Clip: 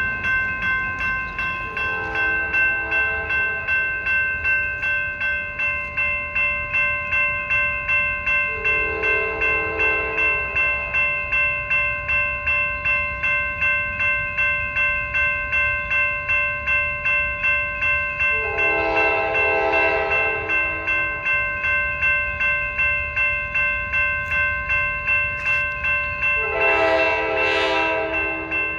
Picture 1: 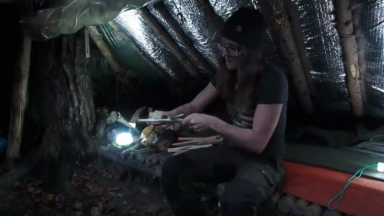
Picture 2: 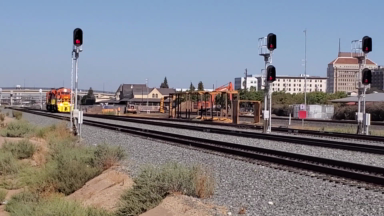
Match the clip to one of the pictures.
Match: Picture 2